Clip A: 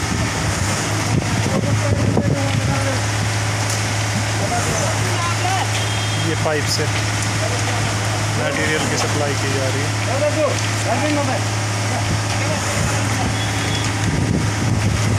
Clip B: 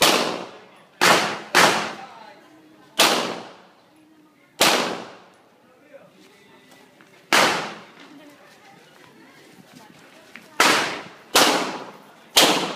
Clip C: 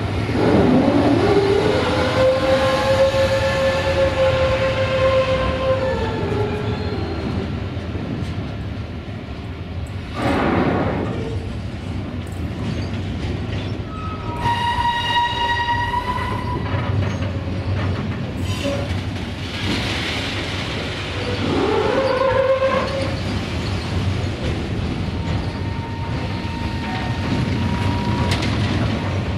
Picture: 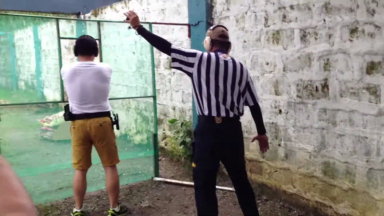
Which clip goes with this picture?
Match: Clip B